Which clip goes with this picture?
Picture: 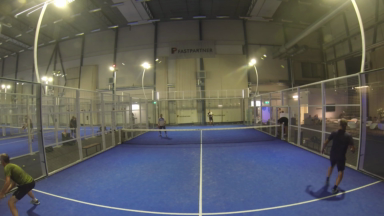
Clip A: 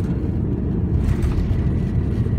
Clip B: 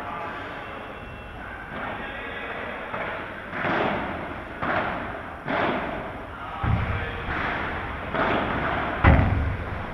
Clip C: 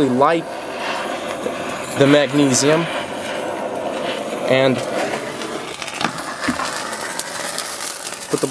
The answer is B